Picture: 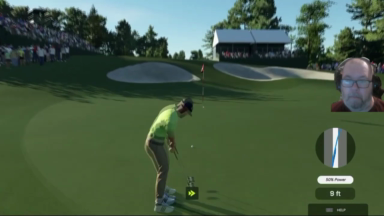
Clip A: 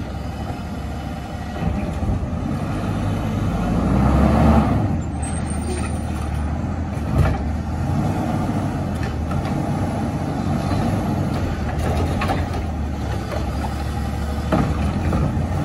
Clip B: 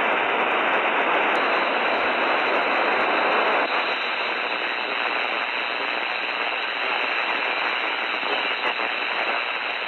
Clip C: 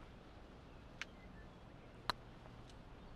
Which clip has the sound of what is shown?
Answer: C